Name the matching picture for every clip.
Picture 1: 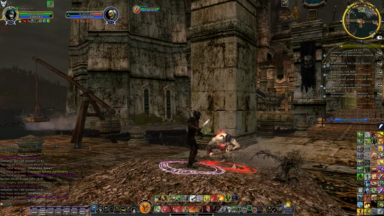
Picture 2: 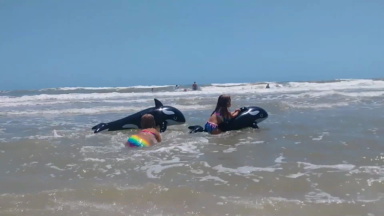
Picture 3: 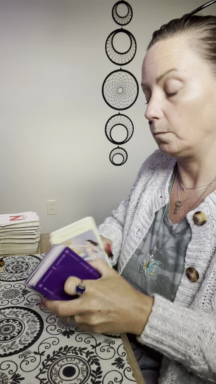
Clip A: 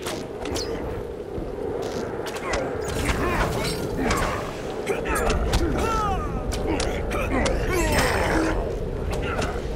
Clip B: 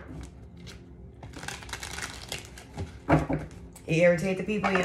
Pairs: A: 1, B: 3